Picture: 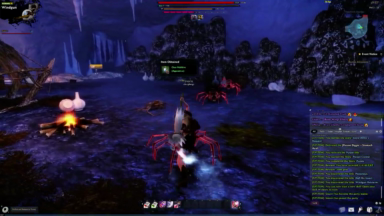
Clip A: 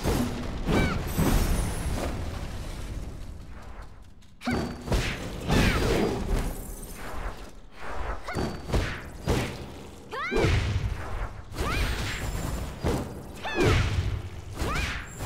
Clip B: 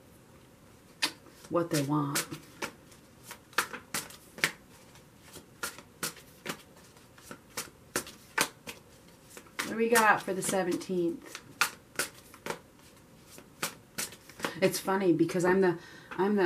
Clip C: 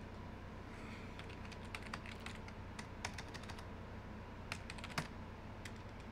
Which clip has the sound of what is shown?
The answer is A